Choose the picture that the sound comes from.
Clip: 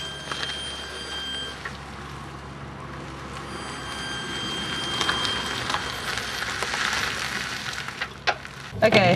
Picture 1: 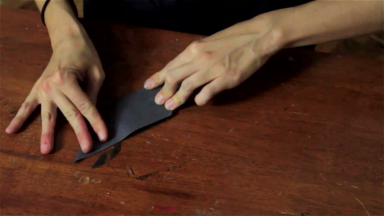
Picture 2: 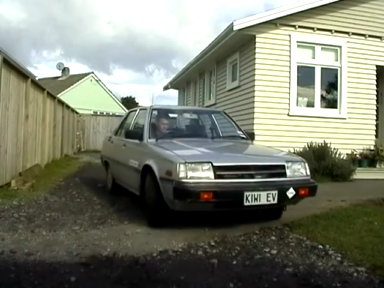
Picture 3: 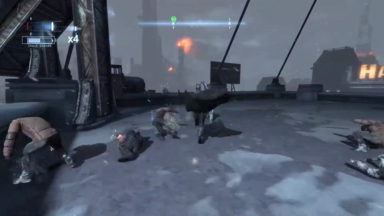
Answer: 2